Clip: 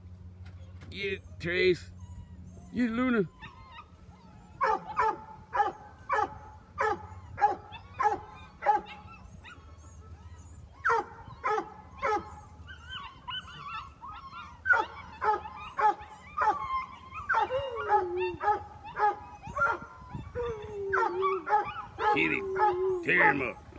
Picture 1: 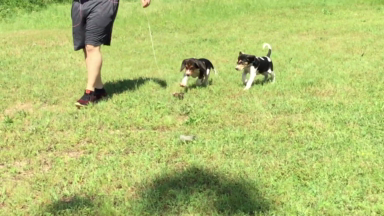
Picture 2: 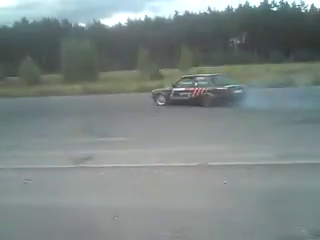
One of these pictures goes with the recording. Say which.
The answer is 1